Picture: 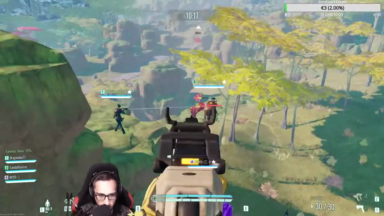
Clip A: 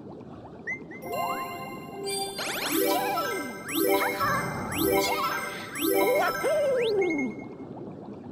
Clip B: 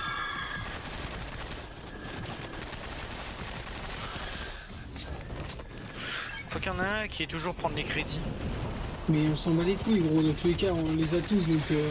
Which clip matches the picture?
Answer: B